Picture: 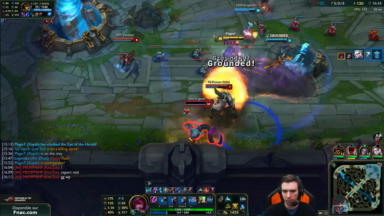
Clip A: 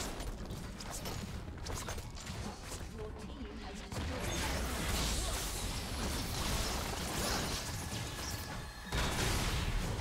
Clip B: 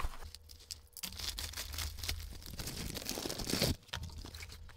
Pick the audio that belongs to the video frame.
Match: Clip A